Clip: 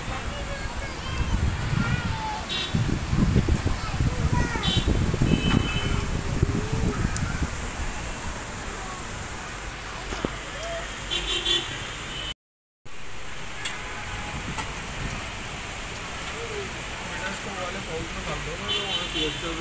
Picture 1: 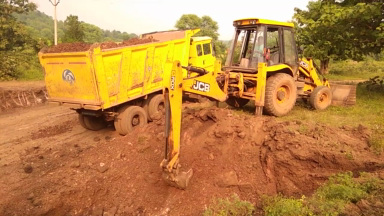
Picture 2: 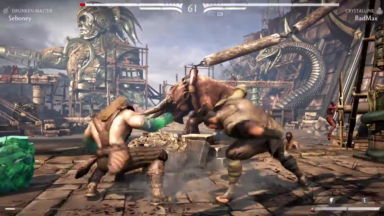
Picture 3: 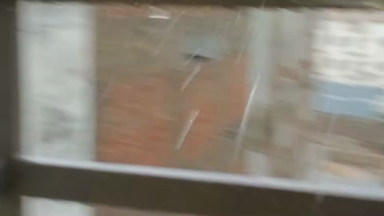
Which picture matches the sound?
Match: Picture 3